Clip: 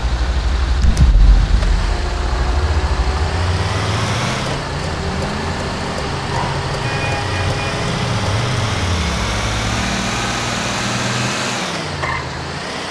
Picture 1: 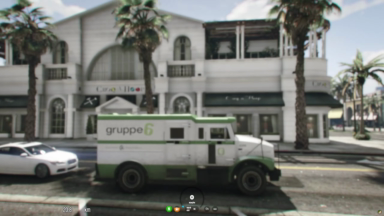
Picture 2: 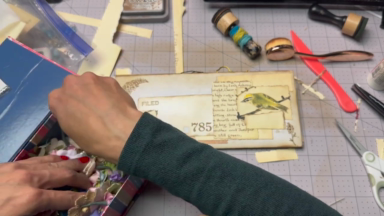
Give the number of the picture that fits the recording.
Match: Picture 1